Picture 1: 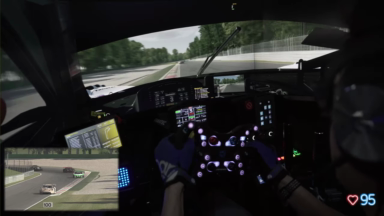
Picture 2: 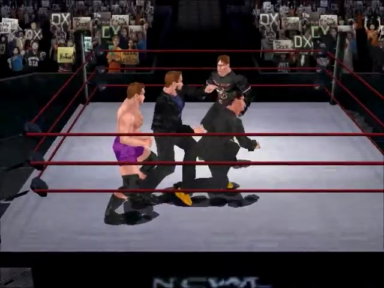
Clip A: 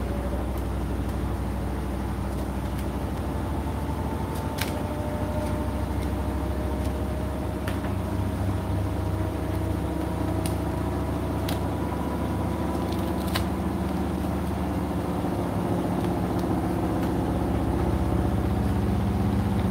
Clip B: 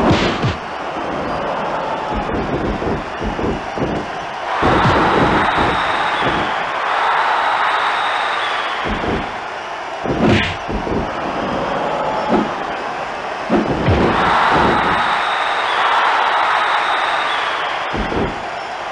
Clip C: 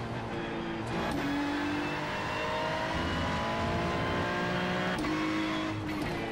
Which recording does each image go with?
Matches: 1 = C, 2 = B